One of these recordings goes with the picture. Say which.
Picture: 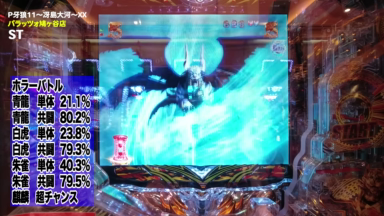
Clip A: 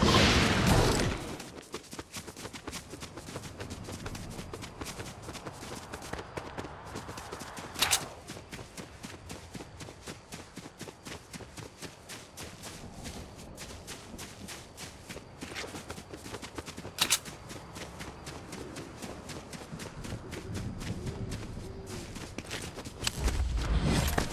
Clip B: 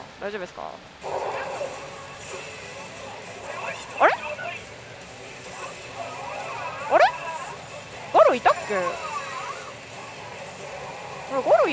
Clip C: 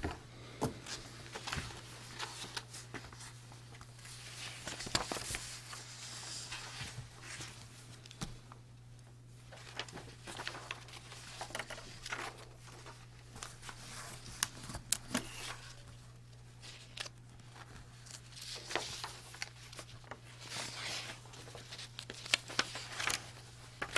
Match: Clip B